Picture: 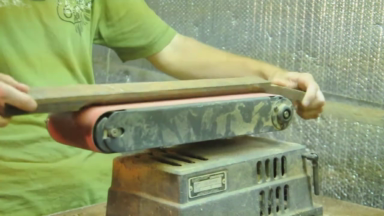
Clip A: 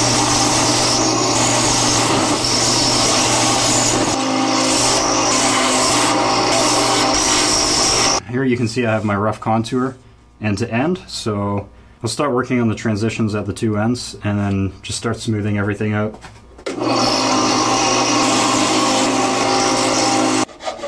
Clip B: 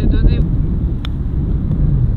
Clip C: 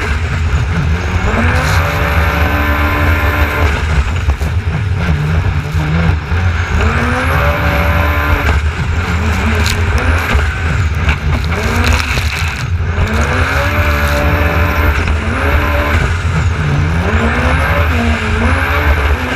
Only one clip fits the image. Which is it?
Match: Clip A